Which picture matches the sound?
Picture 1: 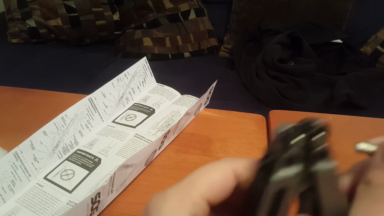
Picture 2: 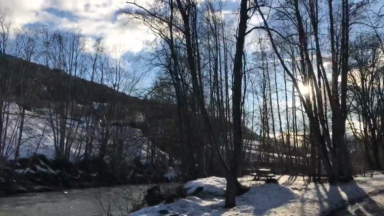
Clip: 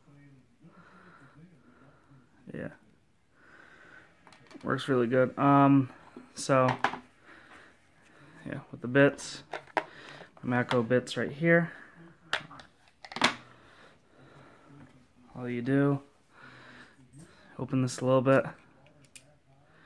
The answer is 1